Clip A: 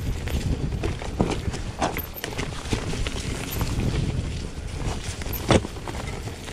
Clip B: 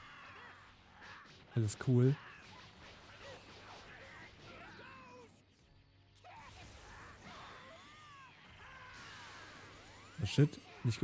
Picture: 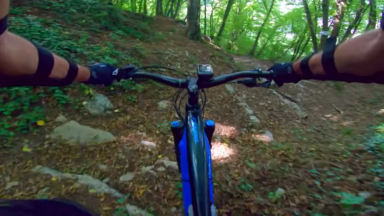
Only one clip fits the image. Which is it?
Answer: A